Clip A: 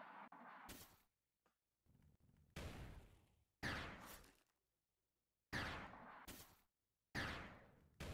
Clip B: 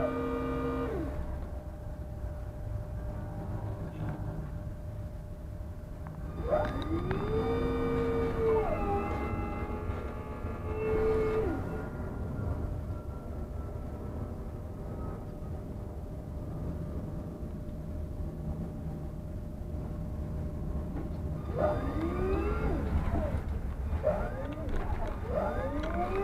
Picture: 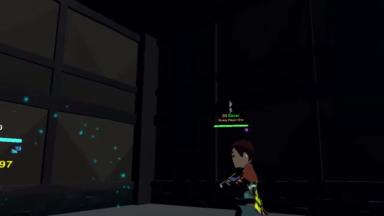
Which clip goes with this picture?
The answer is A